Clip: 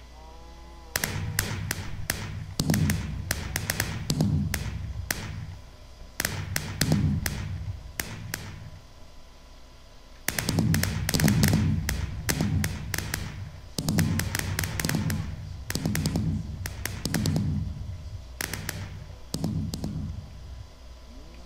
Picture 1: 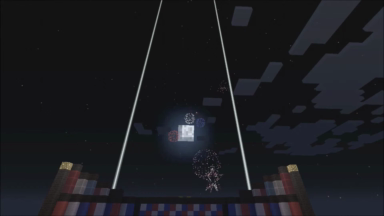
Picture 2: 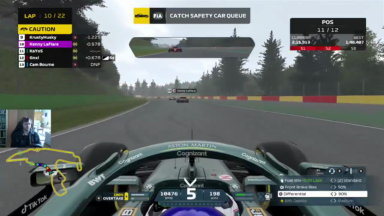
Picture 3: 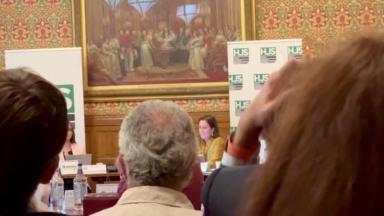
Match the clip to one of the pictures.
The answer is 1